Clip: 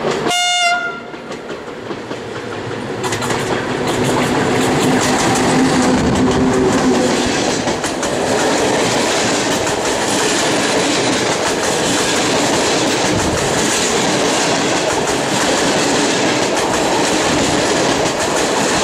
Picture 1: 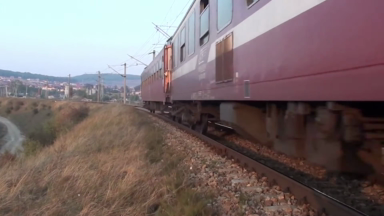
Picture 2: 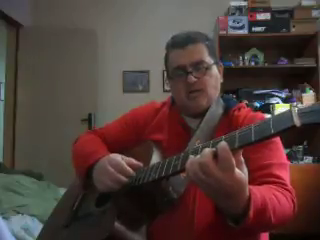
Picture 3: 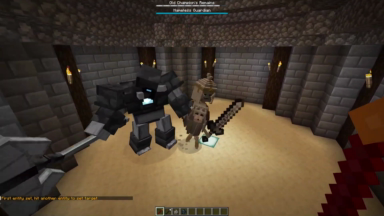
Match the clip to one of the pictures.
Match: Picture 1